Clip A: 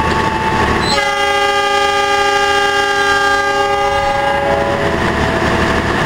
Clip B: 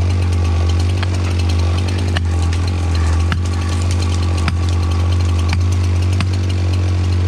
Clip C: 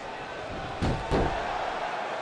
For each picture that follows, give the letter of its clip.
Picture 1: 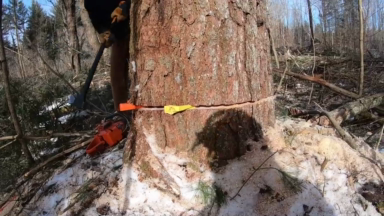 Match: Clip B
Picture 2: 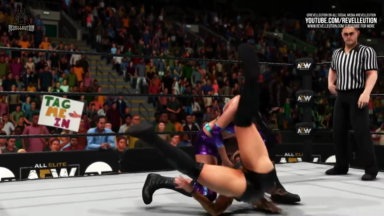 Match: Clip C